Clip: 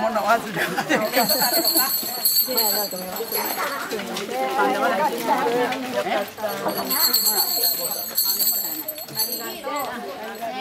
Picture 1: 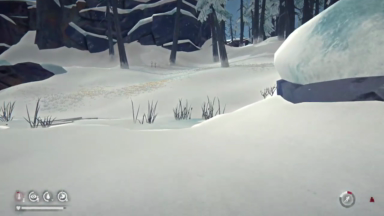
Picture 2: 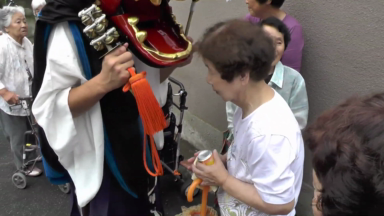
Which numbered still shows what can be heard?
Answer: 2